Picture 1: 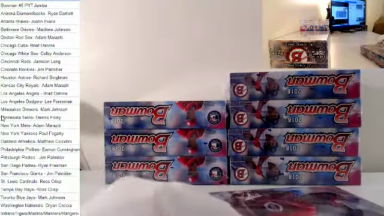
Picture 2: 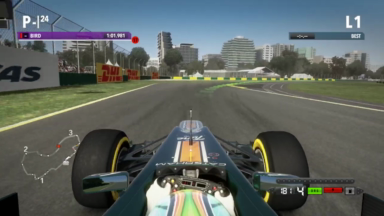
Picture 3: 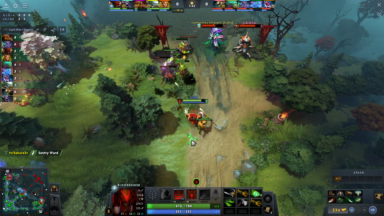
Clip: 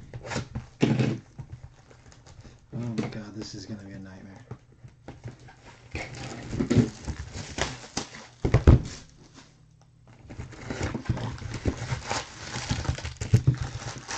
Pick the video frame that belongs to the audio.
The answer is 1